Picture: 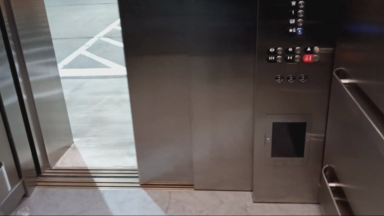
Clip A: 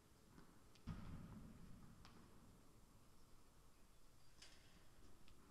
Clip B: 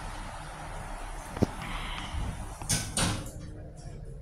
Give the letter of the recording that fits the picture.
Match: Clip B